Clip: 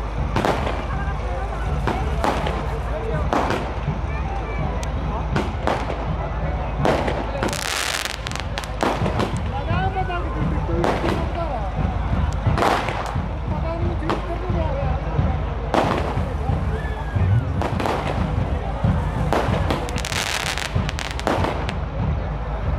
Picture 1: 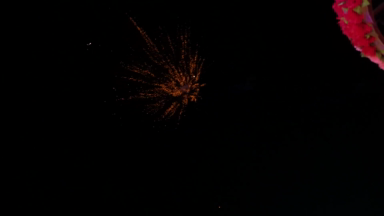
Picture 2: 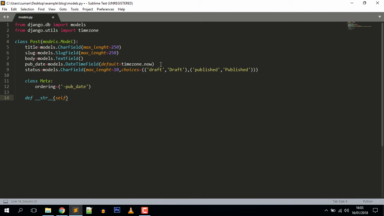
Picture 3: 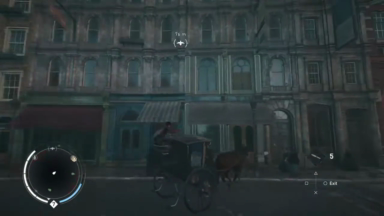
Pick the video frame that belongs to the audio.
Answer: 1